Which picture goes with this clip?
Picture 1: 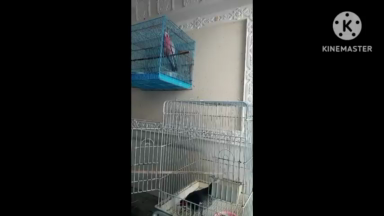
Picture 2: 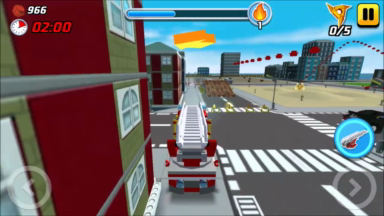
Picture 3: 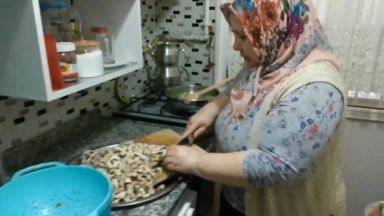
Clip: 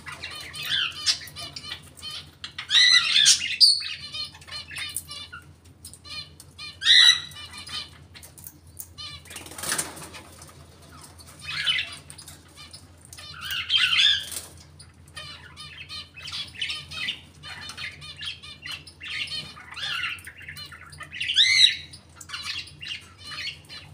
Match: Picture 1